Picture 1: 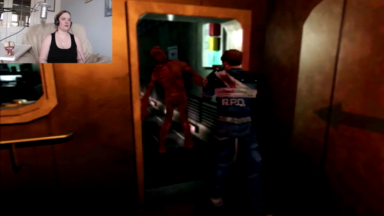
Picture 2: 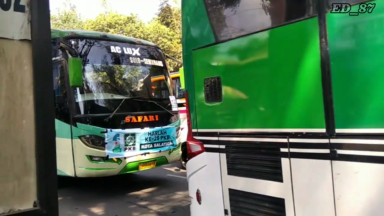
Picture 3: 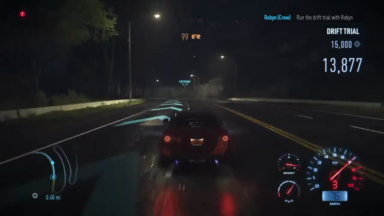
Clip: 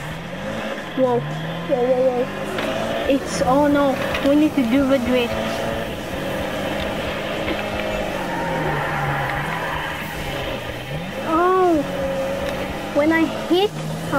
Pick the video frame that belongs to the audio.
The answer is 3